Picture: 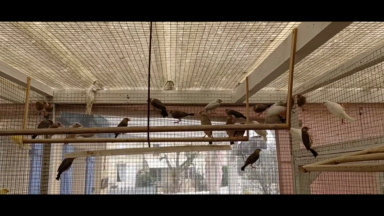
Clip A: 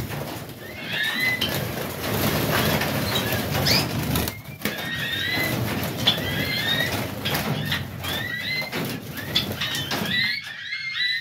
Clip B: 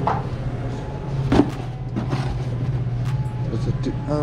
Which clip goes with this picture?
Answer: A